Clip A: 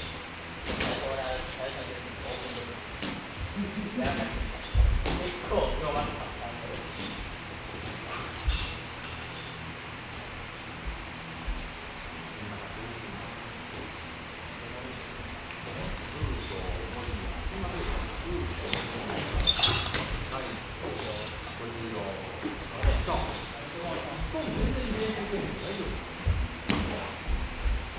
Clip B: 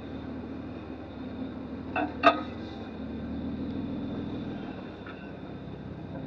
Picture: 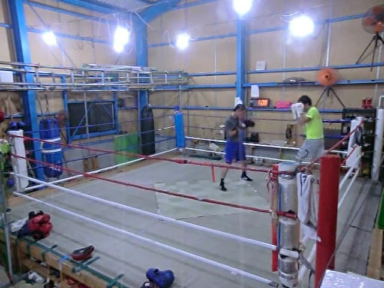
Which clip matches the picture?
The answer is A